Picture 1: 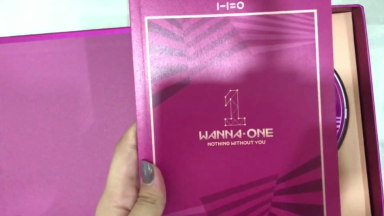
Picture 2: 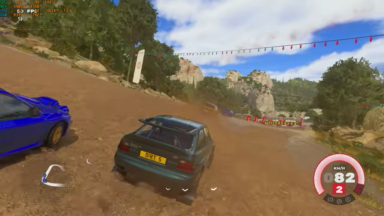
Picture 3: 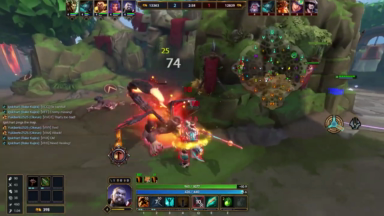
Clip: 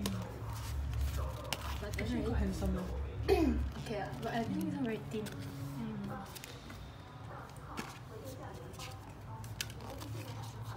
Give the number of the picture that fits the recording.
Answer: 1